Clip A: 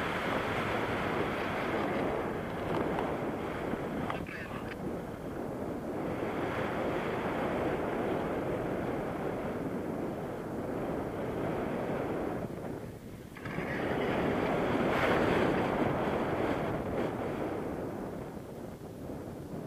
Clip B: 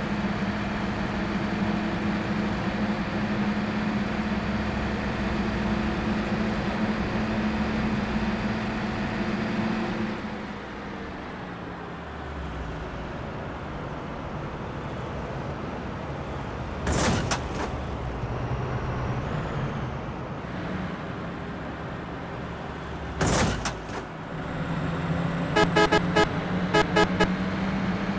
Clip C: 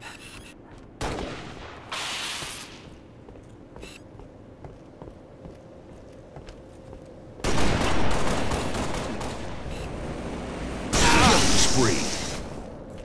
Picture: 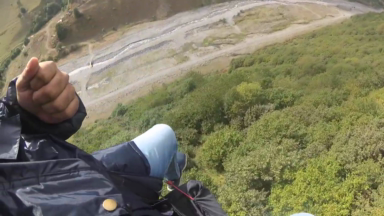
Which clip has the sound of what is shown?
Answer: A